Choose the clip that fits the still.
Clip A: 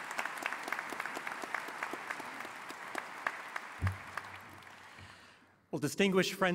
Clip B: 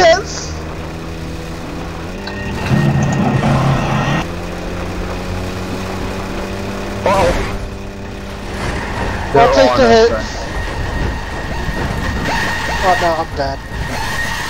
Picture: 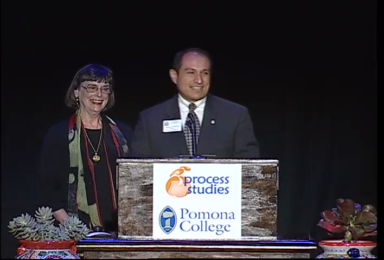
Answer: A